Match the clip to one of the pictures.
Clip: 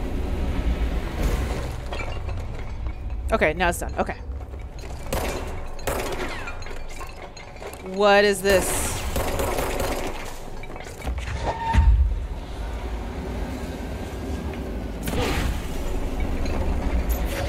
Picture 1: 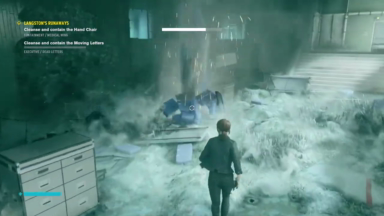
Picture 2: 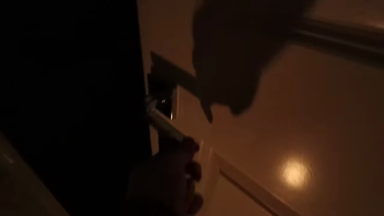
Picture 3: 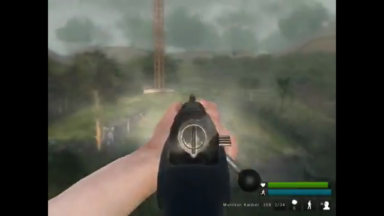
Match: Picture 1